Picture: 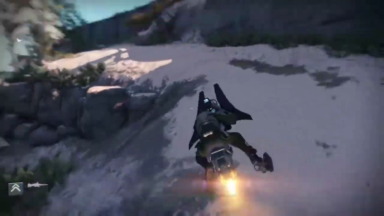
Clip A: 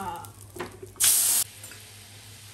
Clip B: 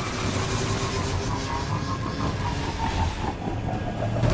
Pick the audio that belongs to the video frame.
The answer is B